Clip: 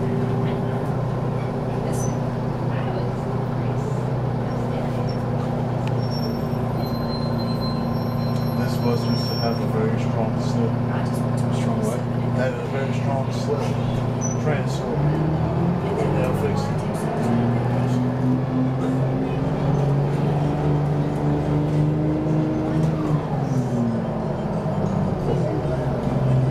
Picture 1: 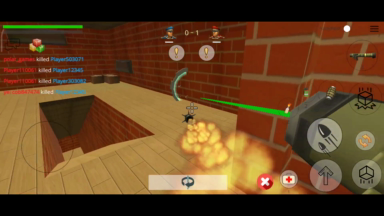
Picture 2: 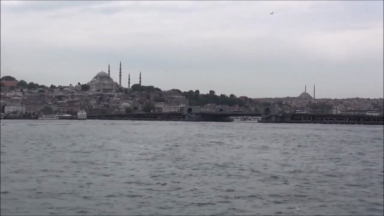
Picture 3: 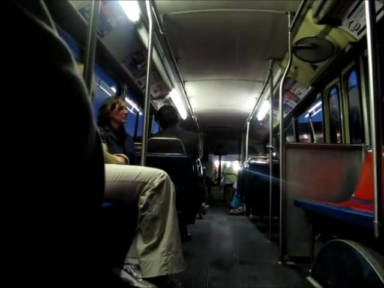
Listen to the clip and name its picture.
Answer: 3